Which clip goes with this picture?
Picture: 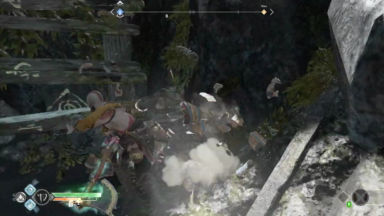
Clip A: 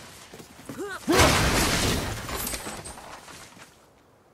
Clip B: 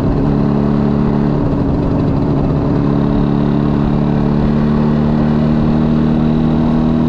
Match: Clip A